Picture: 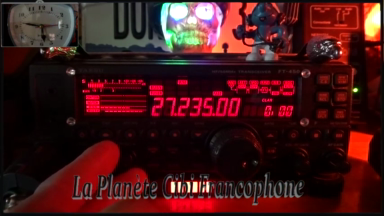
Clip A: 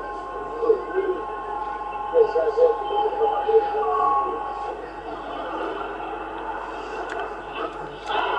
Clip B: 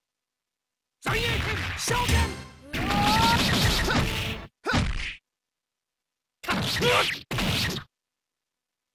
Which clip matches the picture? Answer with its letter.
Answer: A